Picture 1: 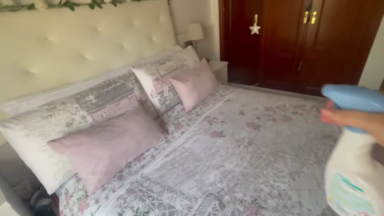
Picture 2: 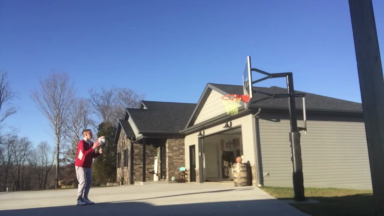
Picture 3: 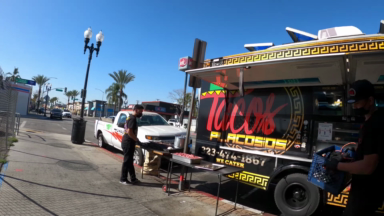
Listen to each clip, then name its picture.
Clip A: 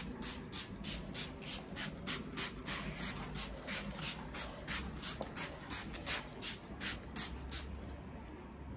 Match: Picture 1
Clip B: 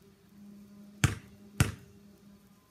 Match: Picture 2